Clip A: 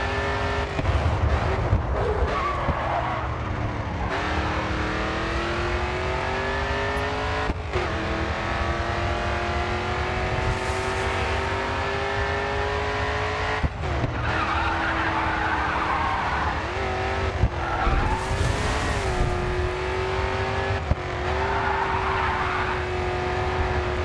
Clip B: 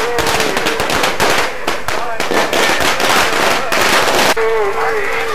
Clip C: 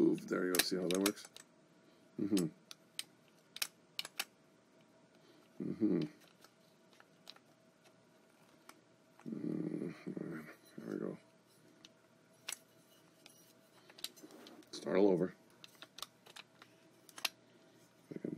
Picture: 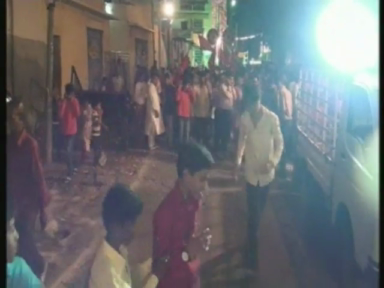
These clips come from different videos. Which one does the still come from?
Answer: B